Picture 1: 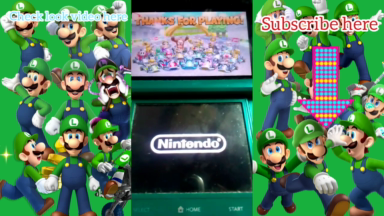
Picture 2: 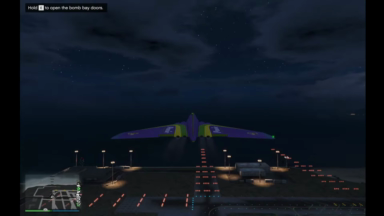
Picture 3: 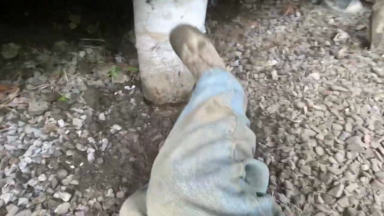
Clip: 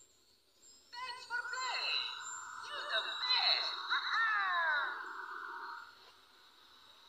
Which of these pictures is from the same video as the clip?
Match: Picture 1